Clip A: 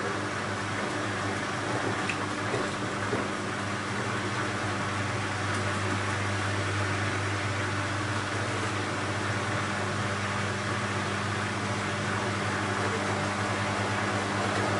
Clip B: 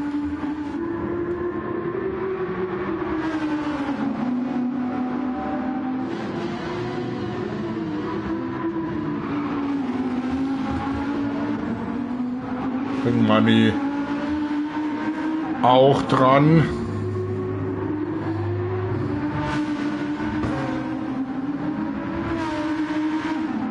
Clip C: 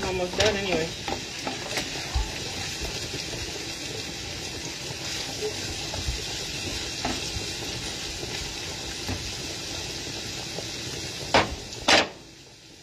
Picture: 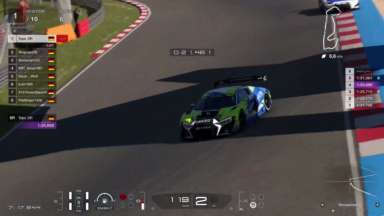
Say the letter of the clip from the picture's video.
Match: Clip B